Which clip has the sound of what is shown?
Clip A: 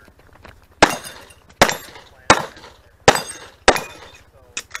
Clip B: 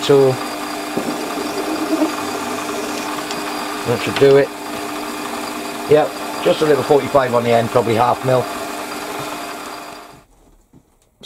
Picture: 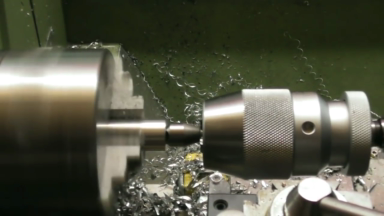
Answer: B